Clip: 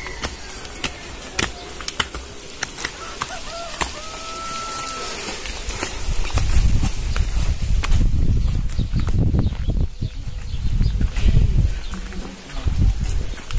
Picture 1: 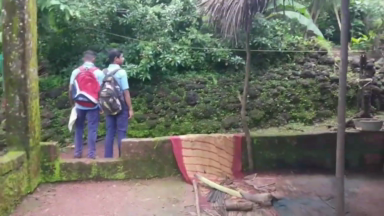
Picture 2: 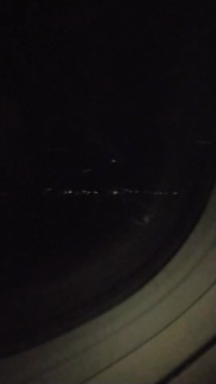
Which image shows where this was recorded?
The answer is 1